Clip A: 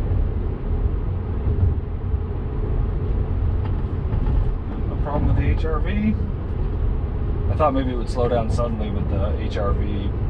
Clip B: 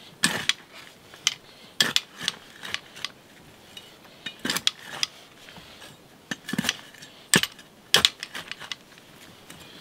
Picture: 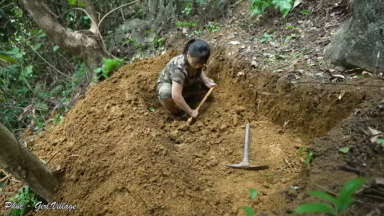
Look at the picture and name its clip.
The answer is B